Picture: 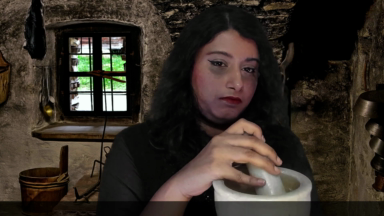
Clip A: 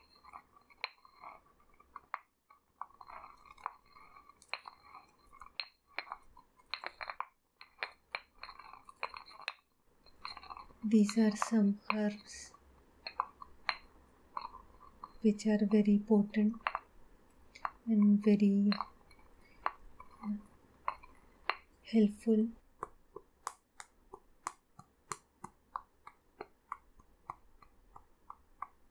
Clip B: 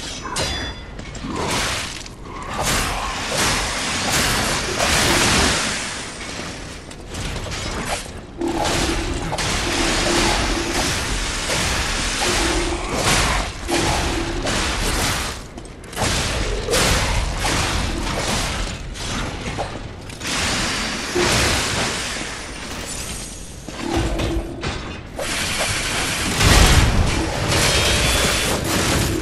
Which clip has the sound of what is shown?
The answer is A